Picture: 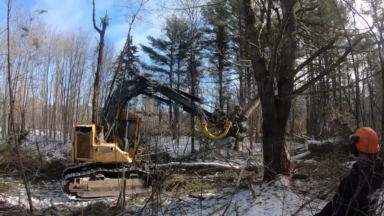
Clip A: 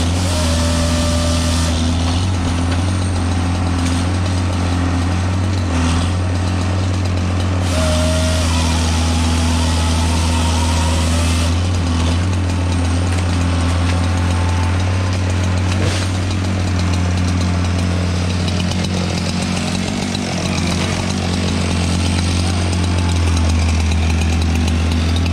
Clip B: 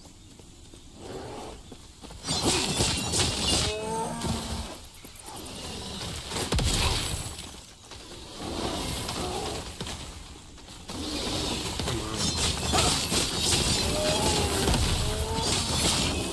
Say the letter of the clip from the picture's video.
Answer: A